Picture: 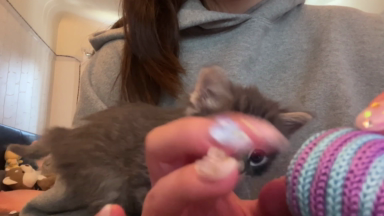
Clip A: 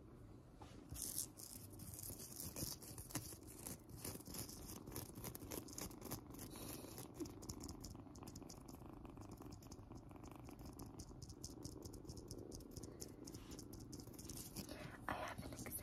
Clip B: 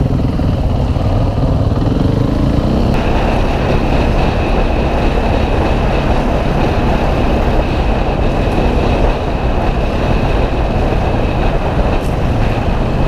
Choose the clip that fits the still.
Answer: A